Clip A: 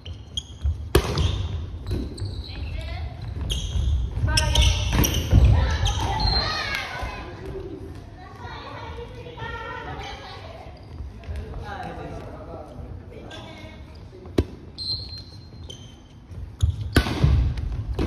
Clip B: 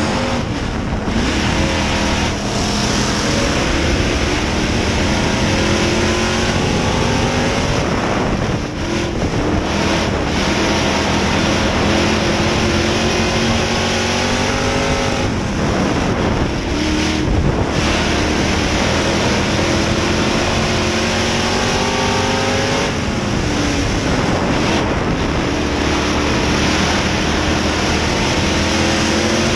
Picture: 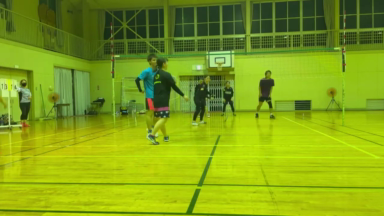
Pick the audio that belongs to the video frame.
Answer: A